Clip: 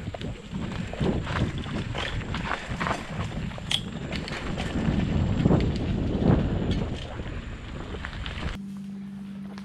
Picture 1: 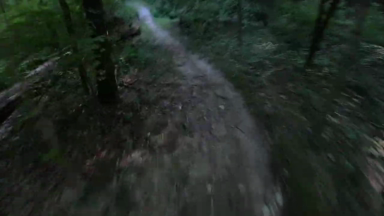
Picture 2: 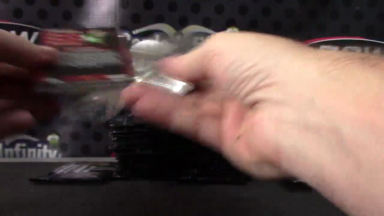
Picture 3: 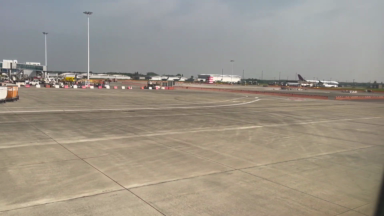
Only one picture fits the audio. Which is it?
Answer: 1